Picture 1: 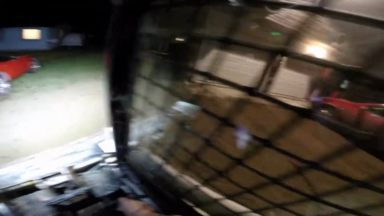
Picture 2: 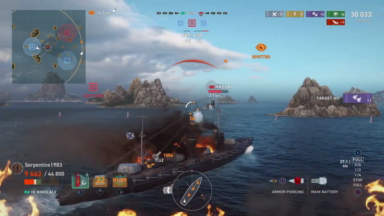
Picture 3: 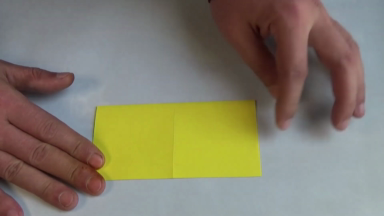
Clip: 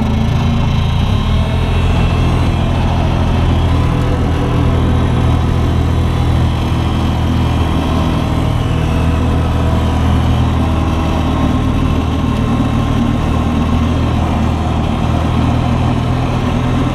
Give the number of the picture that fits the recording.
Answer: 1